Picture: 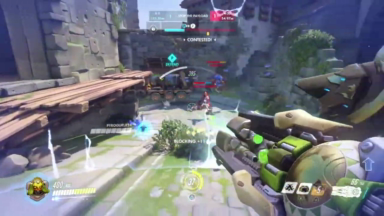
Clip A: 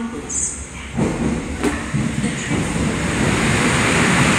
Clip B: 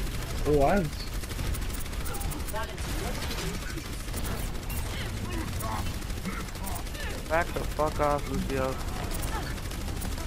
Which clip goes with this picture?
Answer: B